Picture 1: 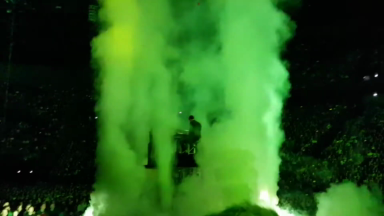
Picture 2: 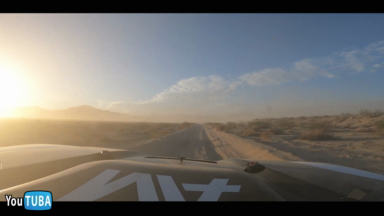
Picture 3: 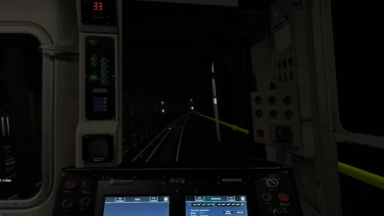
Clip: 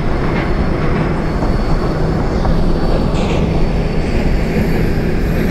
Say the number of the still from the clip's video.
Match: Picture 3